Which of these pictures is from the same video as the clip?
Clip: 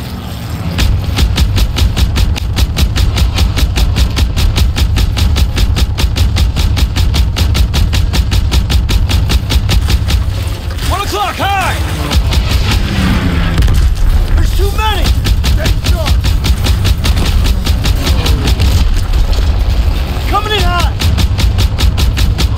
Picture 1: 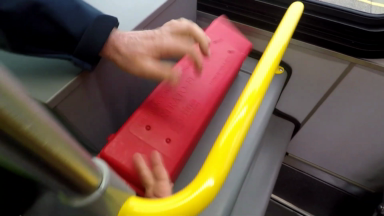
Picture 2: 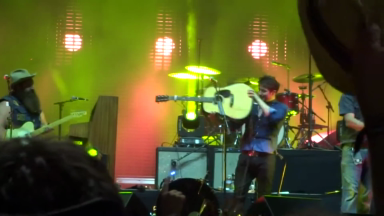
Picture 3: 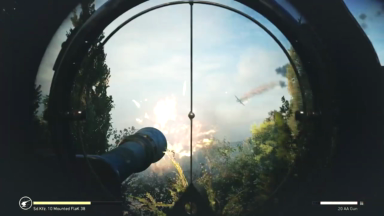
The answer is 3